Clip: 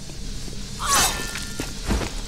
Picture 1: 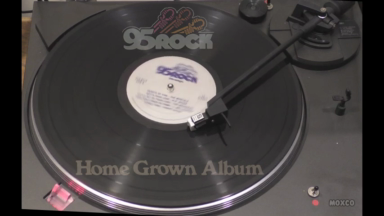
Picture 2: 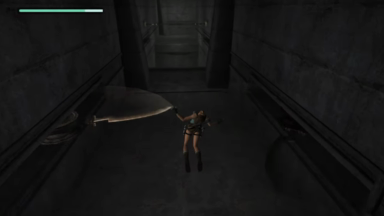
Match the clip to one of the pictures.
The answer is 2